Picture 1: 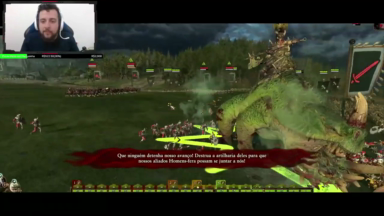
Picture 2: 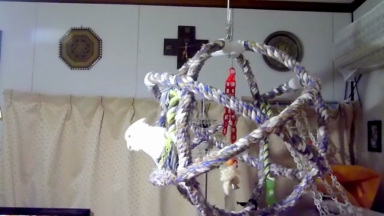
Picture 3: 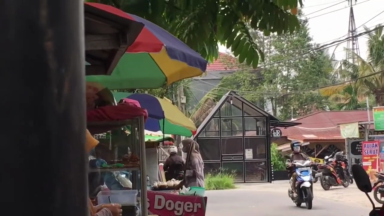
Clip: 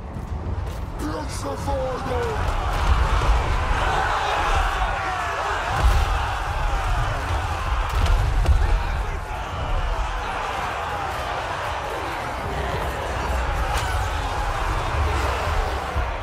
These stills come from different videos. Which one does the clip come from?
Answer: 1